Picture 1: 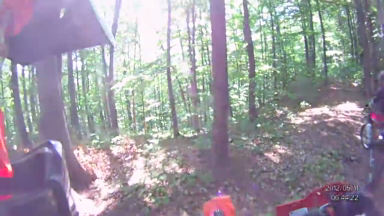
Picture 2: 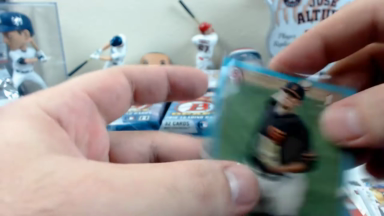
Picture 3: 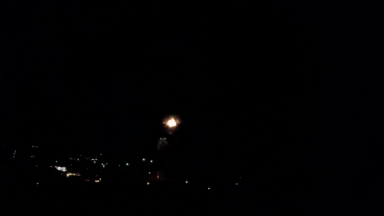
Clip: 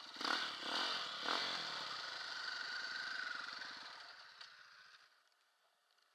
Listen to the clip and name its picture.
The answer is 1